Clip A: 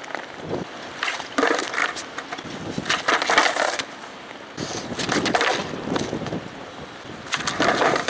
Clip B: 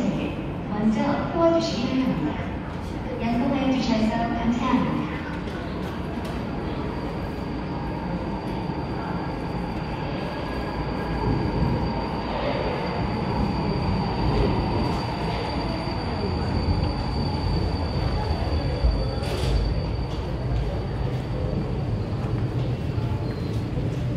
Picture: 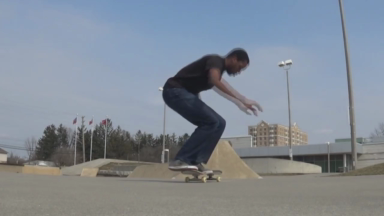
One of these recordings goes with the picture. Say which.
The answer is A